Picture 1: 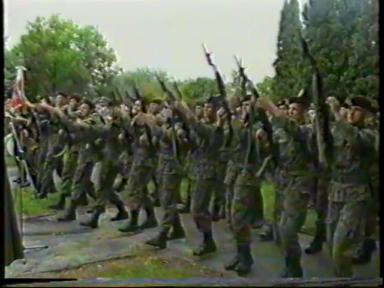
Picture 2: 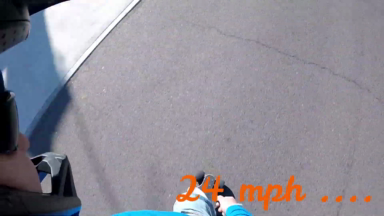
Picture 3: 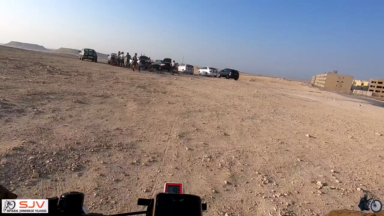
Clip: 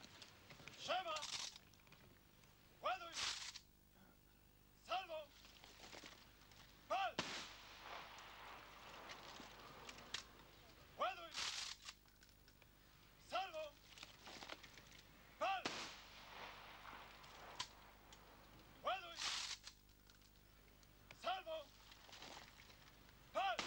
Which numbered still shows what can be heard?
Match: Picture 1